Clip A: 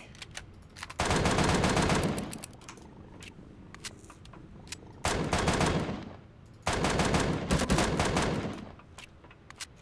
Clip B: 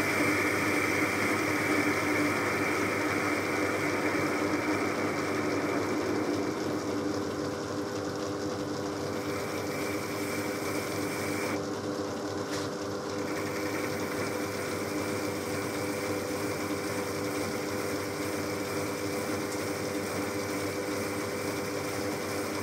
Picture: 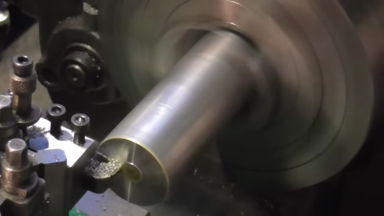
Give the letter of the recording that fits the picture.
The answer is B